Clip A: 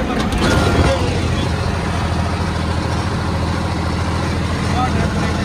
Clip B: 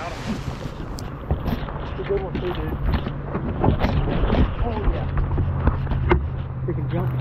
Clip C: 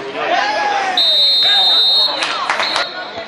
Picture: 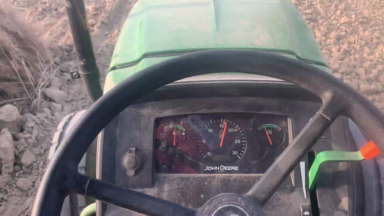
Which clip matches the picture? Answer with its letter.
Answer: A